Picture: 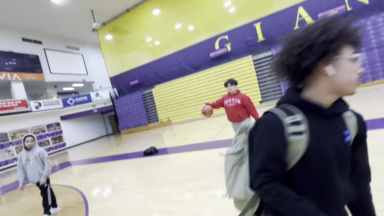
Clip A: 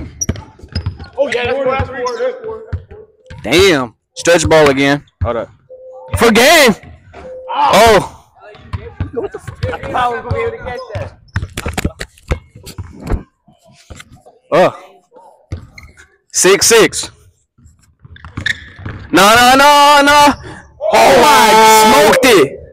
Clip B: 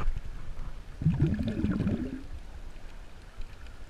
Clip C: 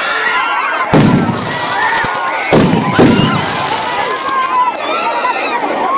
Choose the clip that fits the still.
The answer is A